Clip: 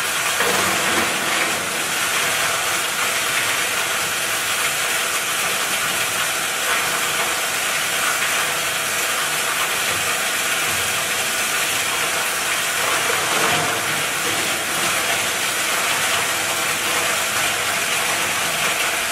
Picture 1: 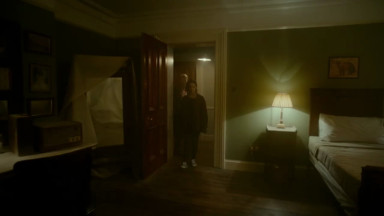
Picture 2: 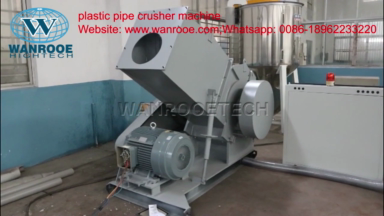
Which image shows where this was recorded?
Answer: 2